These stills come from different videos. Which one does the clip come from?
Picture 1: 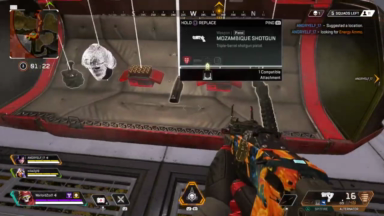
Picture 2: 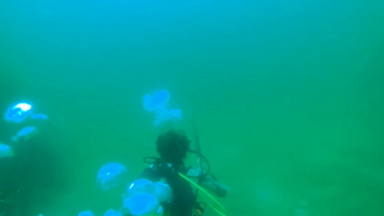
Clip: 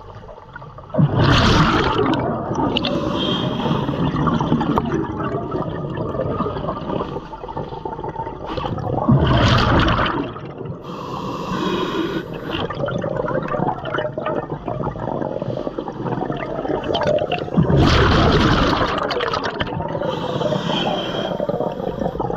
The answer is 2